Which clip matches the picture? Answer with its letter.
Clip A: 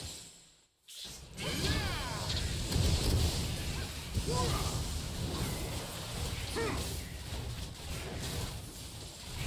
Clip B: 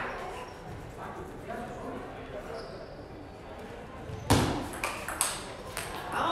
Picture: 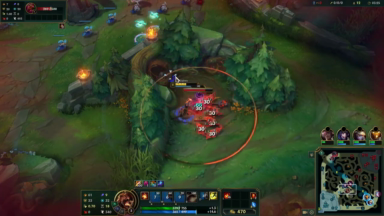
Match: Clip A